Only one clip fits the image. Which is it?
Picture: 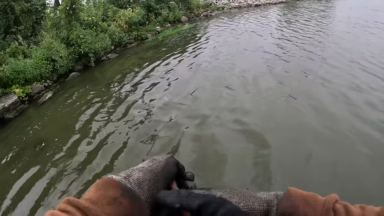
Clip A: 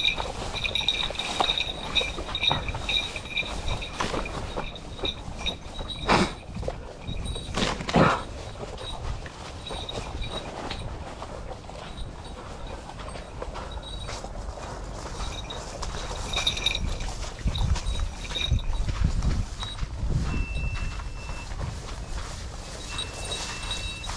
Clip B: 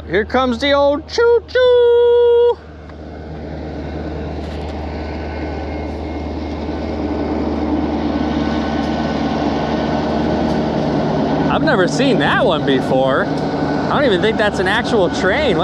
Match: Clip B